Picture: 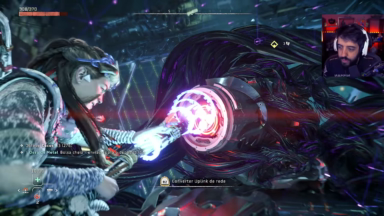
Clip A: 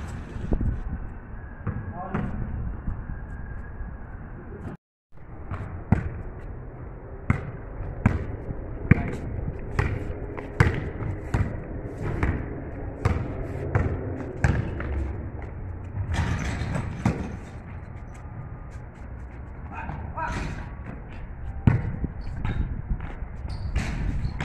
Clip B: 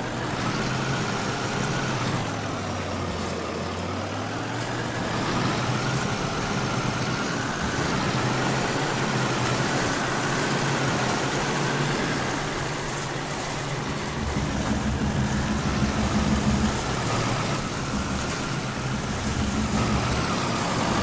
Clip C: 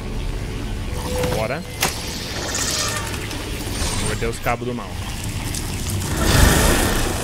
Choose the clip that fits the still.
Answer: C